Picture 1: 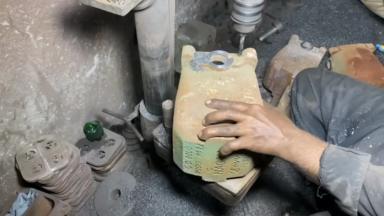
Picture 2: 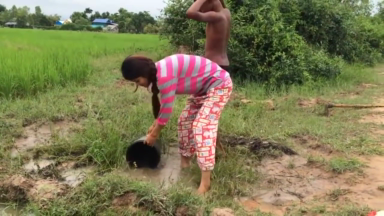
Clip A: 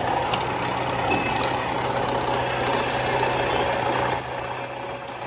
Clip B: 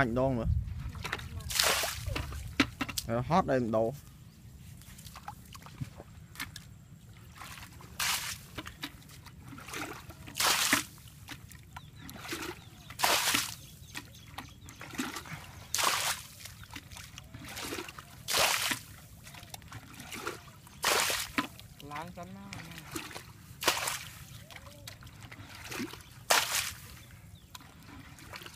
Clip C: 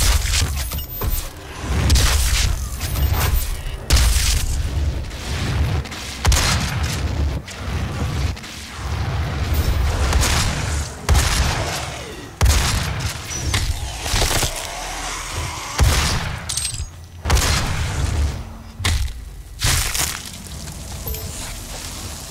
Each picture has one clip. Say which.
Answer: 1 A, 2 B